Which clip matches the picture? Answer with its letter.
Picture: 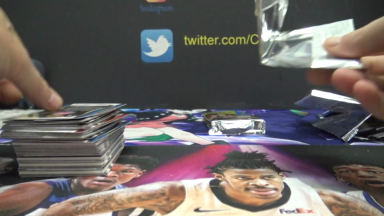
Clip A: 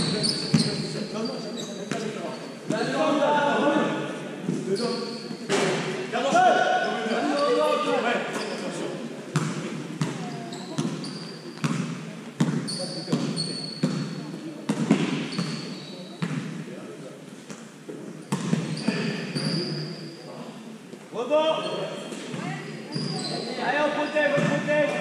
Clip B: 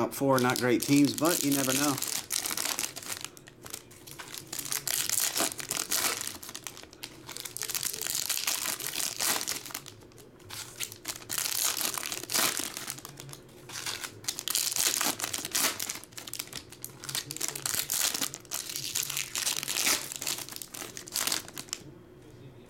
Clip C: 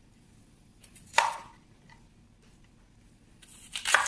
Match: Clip B